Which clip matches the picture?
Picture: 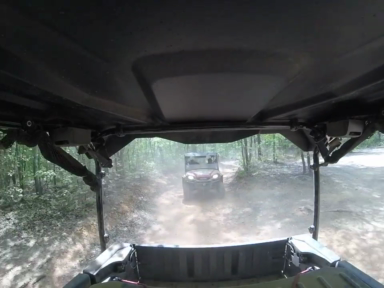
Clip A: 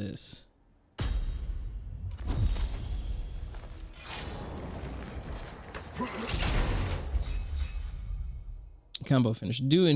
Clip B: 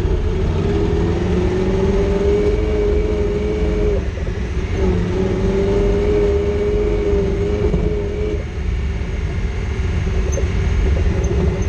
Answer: B